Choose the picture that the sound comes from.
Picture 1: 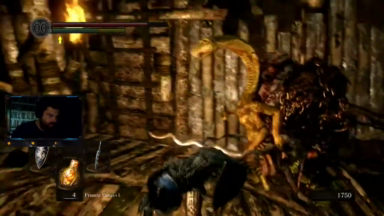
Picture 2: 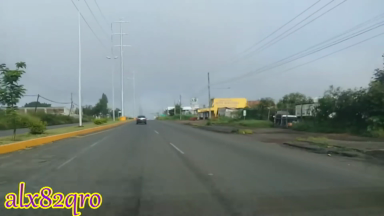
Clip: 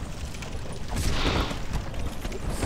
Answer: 1